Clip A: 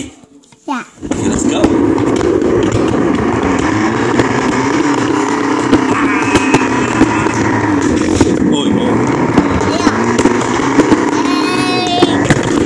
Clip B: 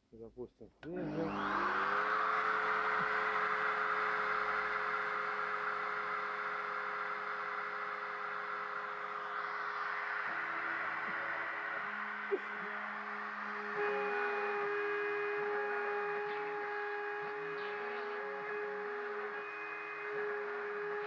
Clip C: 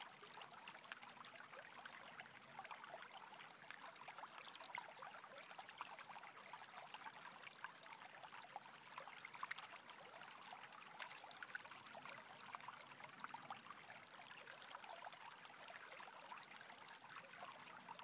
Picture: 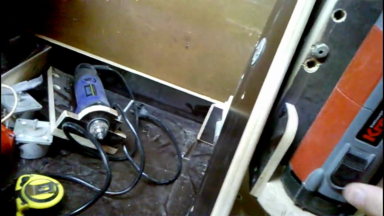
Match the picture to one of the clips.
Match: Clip B